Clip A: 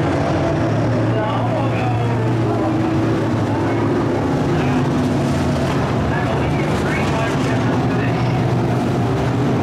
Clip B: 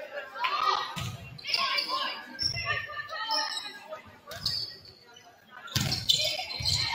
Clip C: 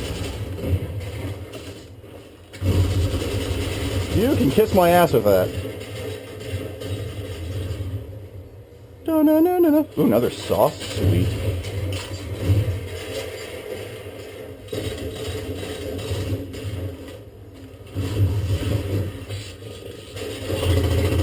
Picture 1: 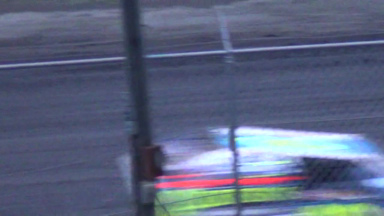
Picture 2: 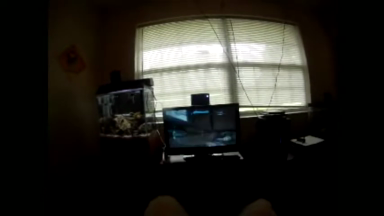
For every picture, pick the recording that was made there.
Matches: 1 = A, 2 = C